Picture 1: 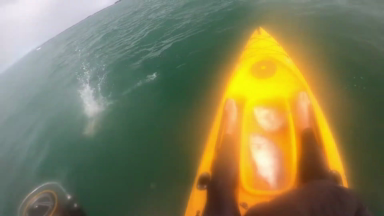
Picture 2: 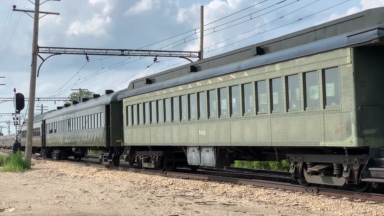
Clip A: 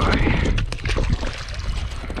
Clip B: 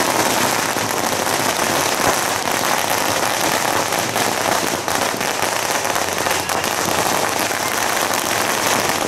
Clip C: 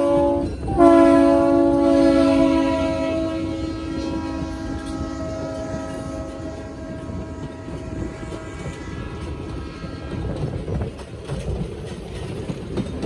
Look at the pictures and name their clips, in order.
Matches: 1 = A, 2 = C